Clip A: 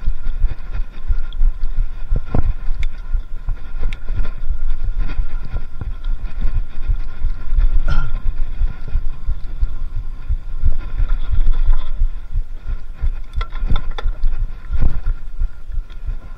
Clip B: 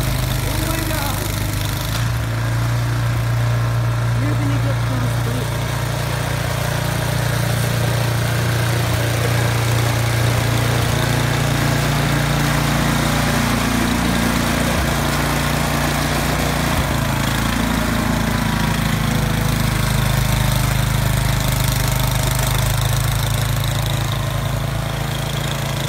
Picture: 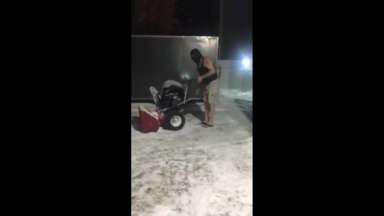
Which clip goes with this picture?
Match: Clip B